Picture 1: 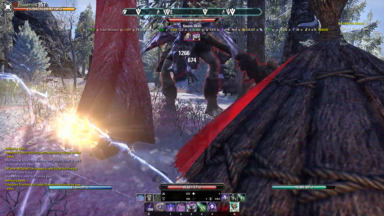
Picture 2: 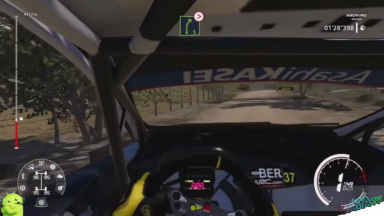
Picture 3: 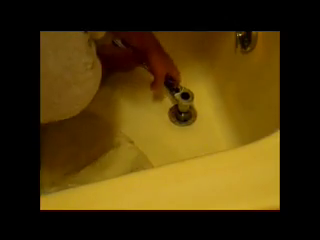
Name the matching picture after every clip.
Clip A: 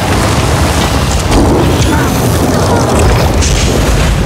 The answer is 1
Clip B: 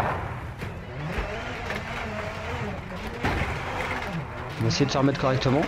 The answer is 2